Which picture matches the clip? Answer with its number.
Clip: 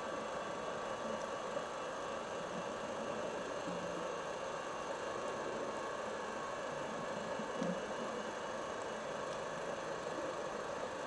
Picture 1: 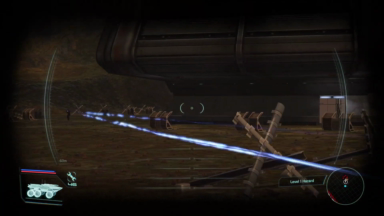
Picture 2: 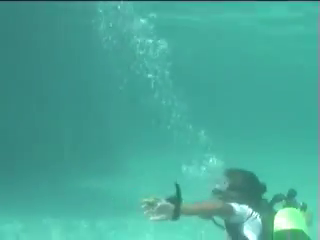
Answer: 2